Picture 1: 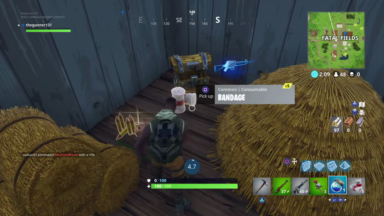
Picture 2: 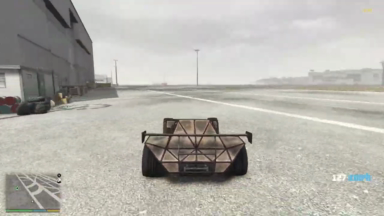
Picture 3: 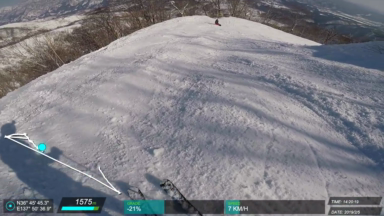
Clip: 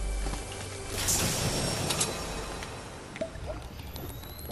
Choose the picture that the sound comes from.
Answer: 1